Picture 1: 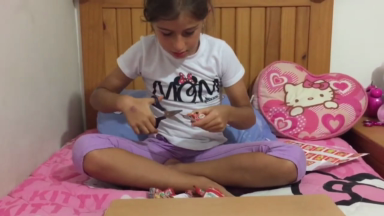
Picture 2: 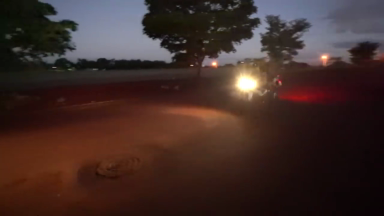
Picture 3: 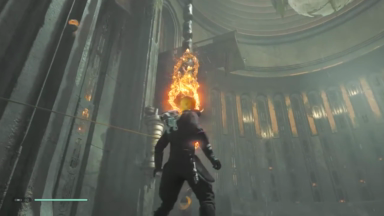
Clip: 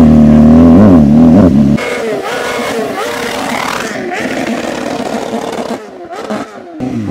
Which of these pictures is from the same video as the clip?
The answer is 2